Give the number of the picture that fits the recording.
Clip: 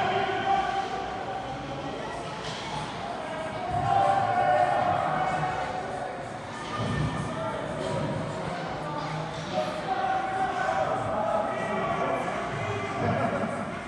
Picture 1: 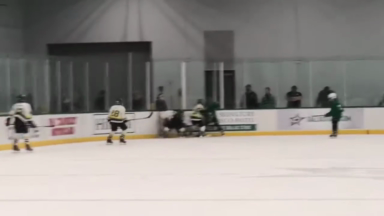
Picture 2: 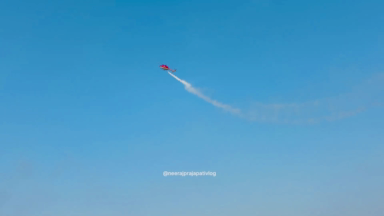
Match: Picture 1